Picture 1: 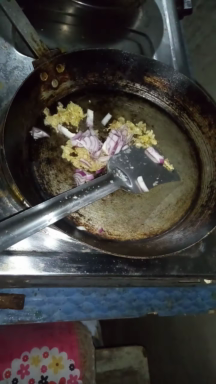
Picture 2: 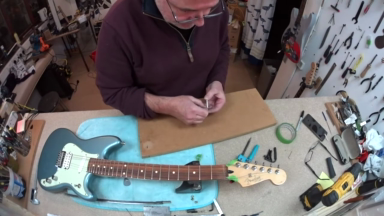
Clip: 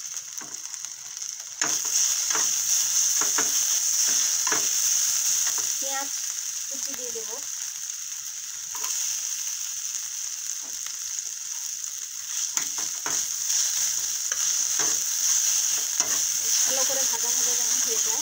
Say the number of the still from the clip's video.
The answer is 1